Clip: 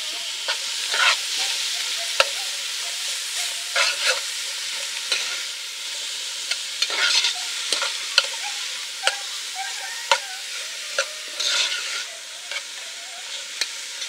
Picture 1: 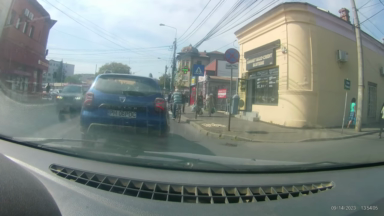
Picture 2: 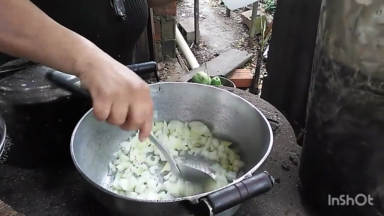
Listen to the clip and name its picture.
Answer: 2